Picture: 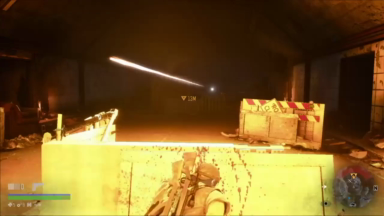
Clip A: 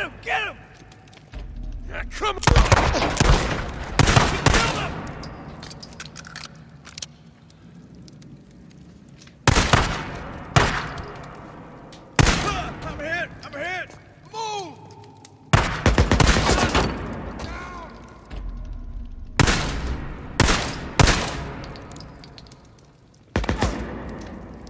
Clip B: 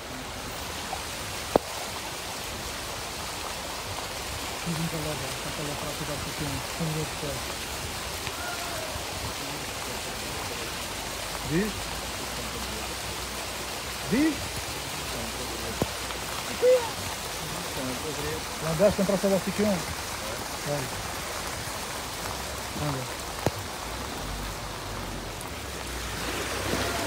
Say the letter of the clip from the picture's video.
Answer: A